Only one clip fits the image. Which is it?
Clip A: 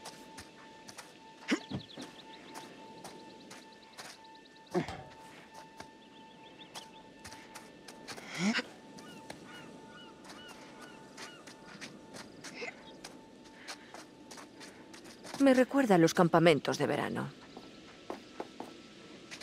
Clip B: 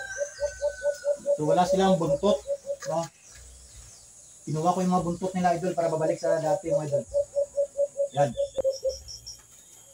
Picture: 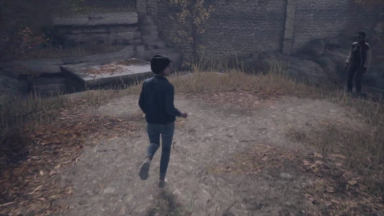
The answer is A